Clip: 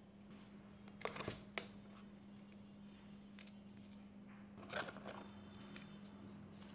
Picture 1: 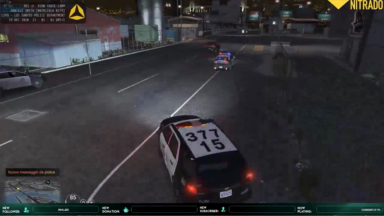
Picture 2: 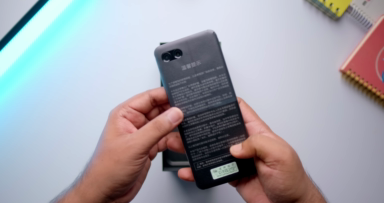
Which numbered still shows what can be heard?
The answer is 2